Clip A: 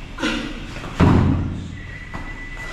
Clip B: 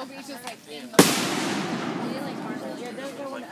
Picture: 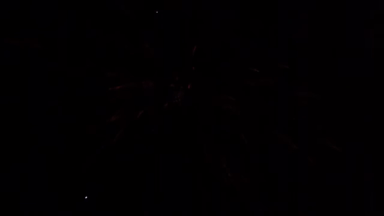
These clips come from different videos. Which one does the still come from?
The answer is B